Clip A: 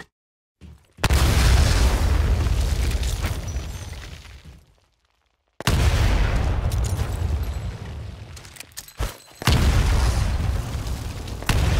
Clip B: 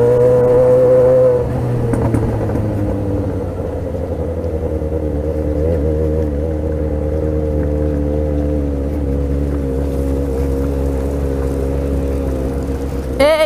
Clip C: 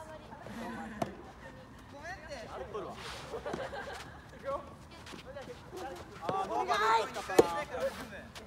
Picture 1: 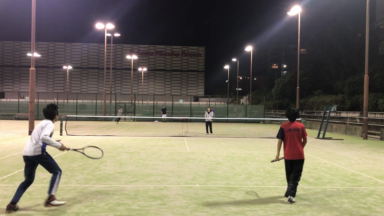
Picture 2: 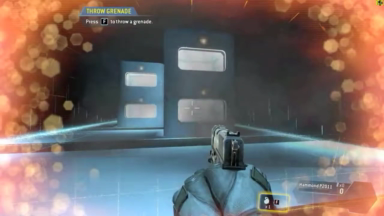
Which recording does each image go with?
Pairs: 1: C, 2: A